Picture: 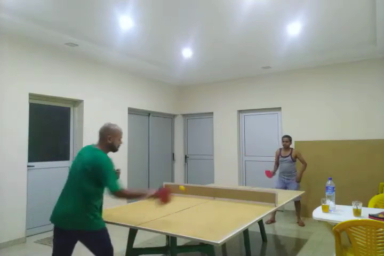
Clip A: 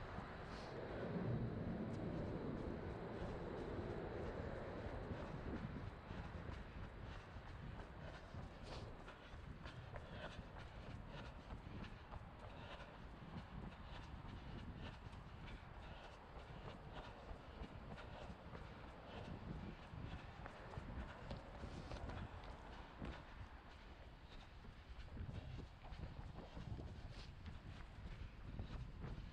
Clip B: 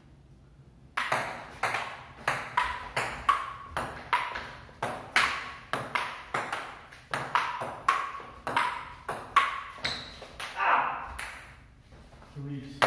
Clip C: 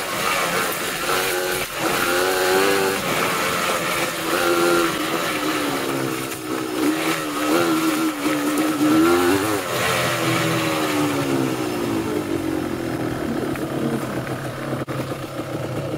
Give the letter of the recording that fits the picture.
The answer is B